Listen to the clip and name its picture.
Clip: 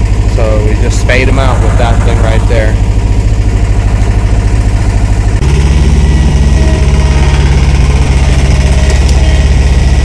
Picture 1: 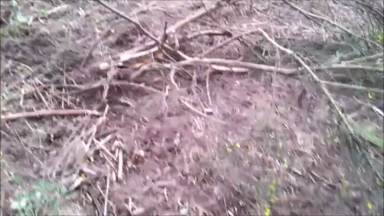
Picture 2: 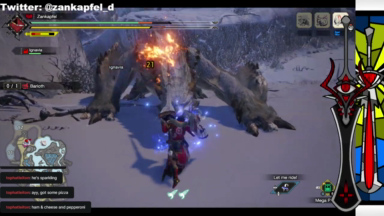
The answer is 1